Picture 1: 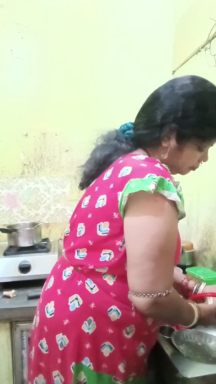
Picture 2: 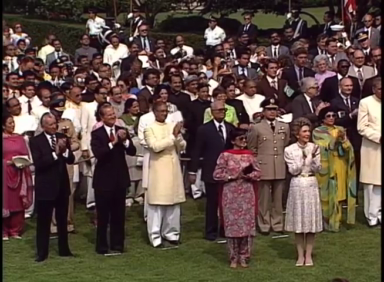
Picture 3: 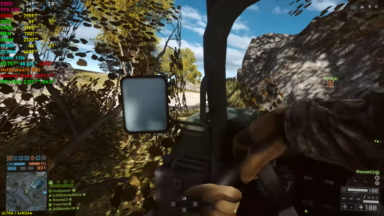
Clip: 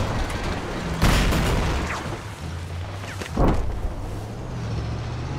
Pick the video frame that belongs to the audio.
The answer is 3